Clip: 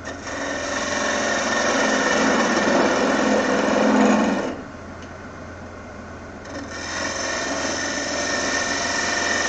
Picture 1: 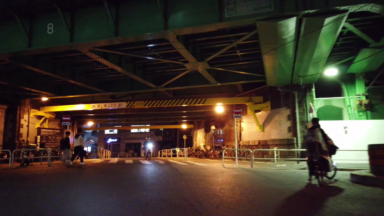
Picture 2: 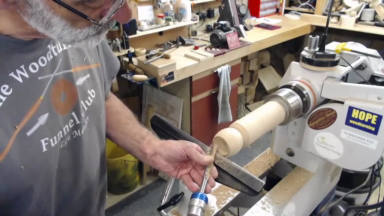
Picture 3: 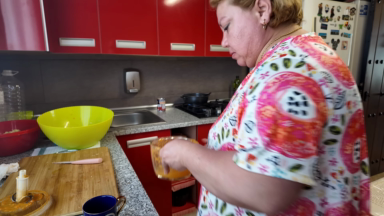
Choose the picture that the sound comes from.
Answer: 2